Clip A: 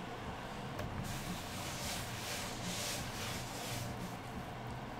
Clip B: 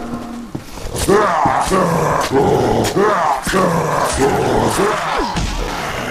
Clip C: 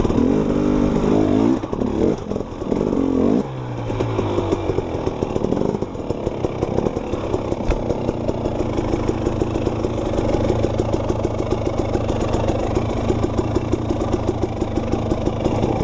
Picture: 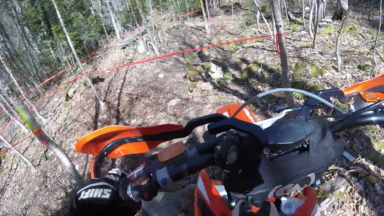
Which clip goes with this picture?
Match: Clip C